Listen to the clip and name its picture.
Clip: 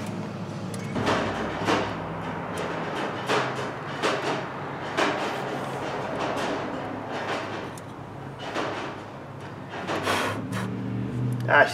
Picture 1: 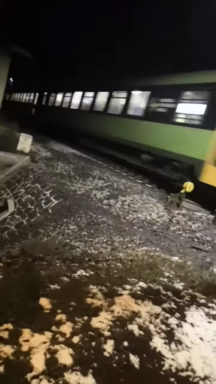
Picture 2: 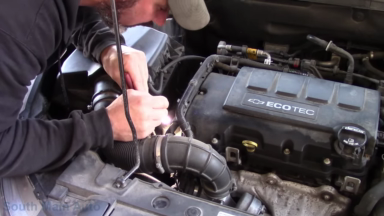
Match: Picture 2